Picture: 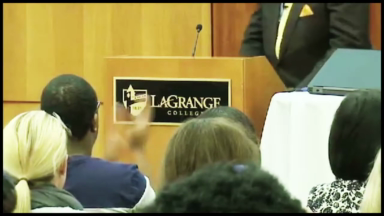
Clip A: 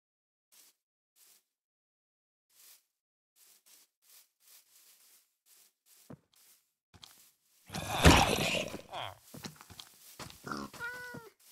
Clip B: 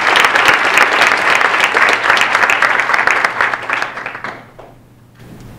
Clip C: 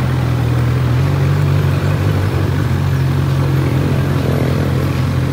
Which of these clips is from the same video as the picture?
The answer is B